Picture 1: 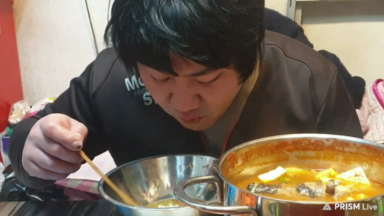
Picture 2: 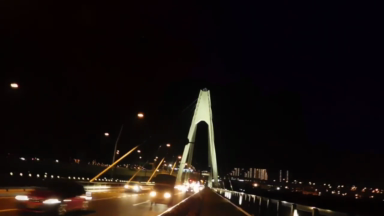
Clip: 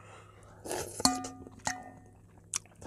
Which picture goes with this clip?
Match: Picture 1